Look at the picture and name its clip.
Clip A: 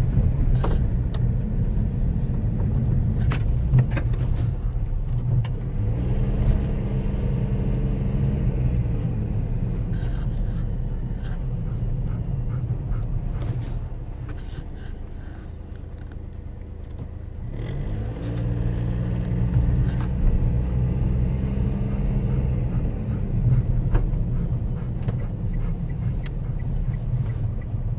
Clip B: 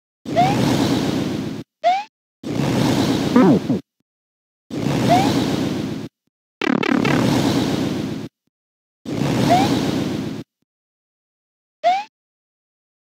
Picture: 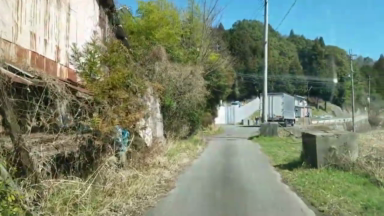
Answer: A